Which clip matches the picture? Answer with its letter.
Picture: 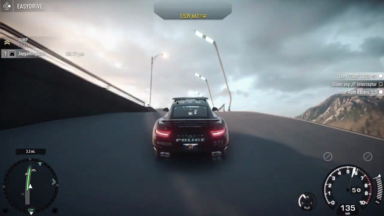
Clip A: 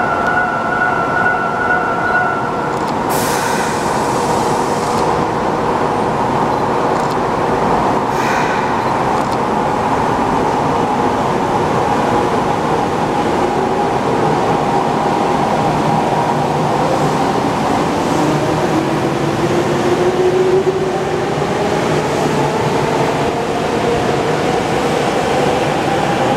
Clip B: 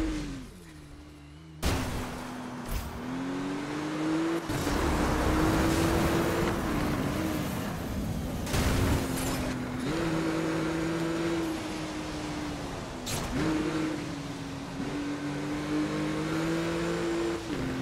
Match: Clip B